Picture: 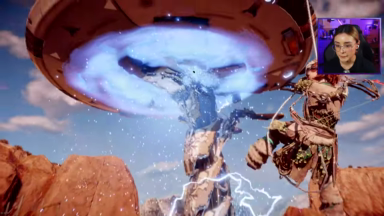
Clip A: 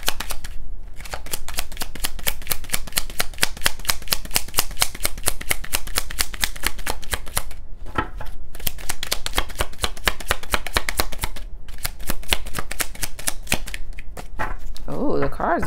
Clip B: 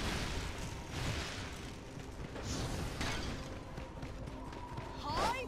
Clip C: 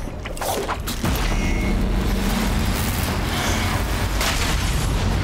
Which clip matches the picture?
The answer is C